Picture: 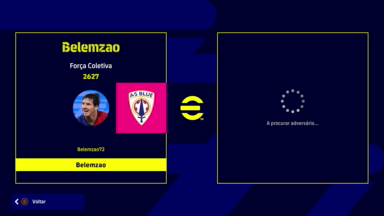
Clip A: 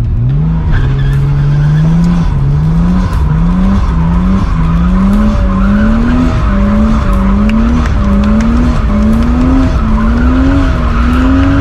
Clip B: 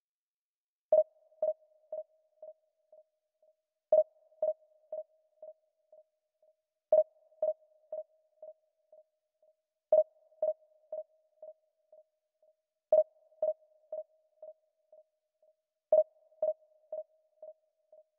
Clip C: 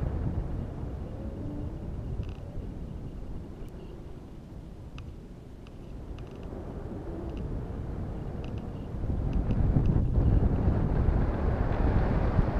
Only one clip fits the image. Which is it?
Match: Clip B